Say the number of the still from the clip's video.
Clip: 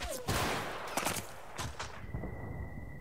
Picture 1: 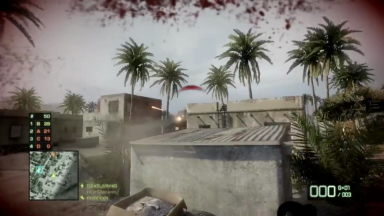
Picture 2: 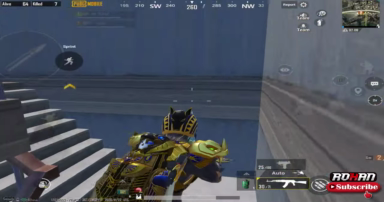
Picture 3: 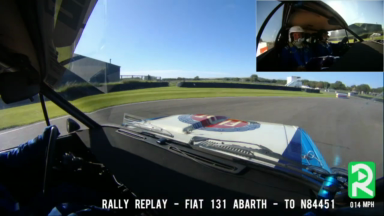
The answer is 1